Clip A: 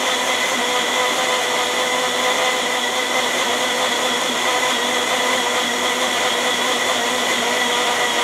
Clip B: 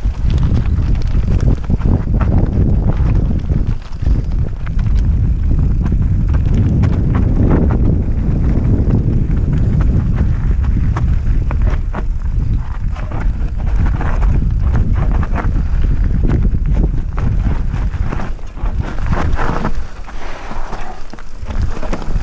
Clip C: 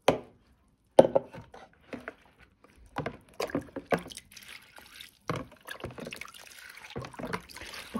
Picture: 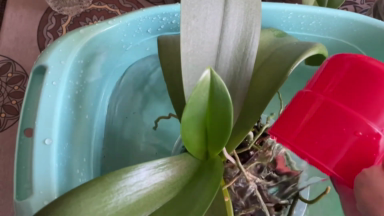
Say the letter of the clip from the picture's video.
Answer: C